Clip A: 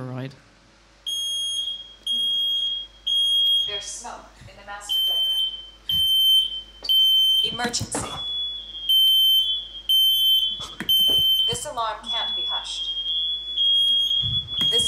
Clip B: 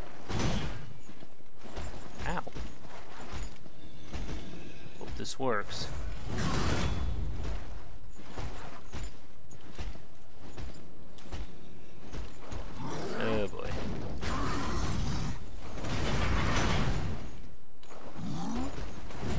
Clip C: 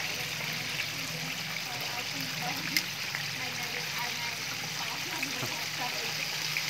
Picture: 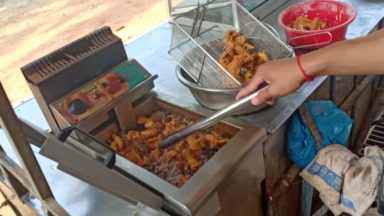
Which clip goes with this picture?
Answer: C